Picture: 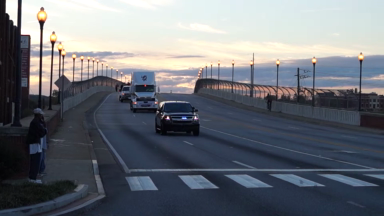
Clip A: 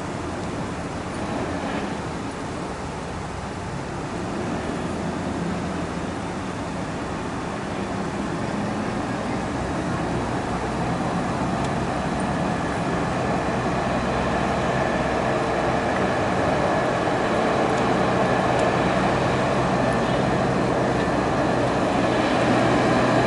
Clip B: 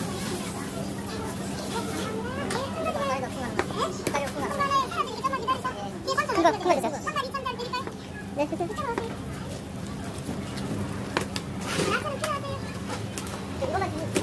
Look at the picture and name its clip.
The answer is A